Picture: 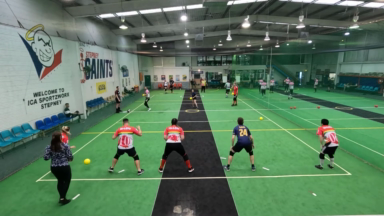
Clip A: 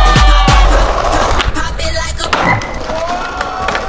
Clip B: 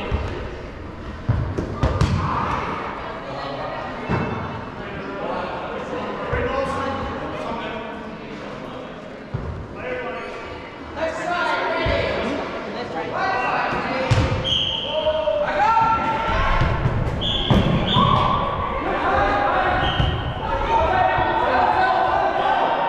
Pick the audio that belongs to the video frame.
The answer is B